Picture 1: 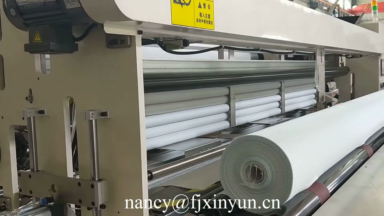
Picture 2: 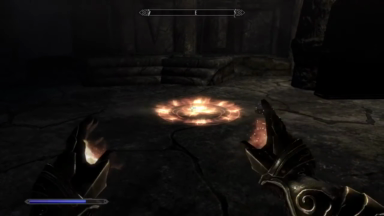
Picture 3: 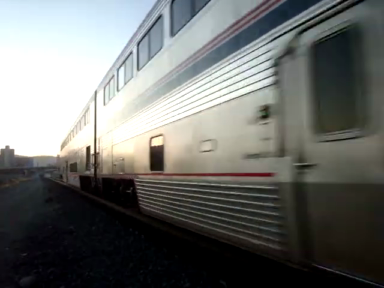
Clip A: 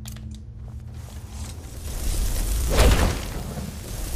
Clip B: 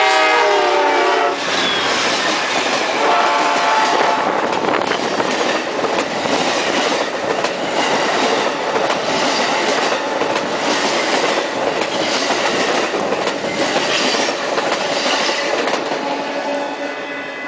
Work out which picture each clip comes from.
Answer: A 2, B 3